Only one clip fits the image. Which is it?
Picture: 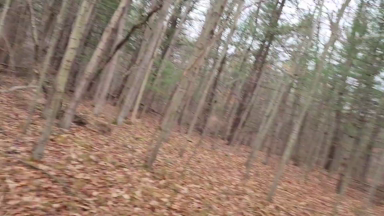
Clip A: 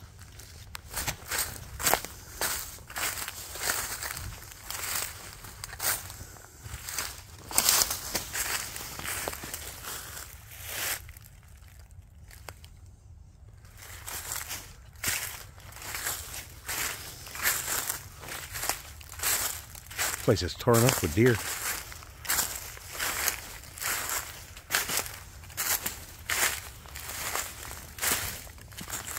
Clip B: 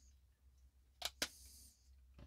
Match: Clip A